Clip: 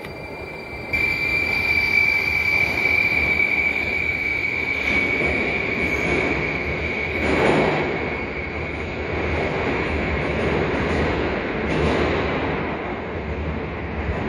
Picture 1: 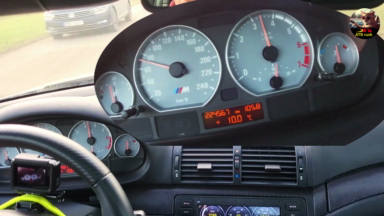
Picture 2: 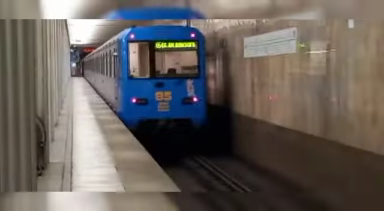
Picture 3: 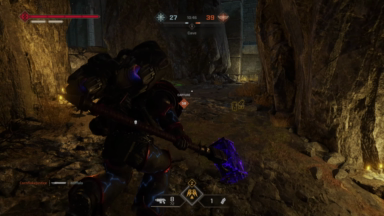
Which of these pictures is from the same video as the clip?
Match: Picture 2